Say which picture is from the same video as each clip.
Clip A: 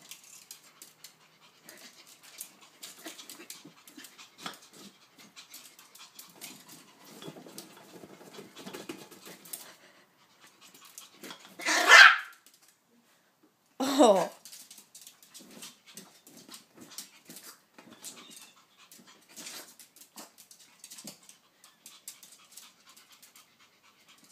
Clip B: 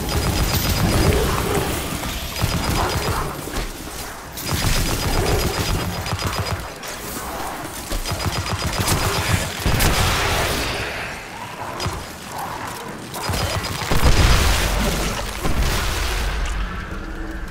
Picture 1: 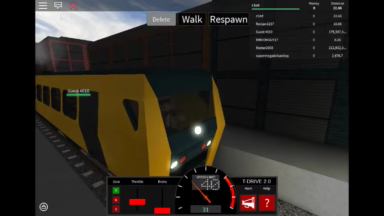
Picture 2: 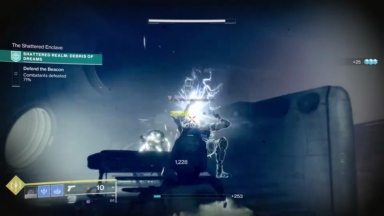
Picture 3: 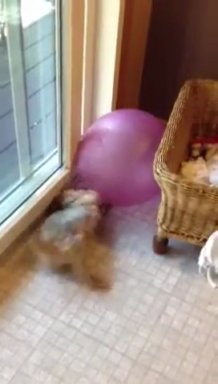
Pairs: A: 3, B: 2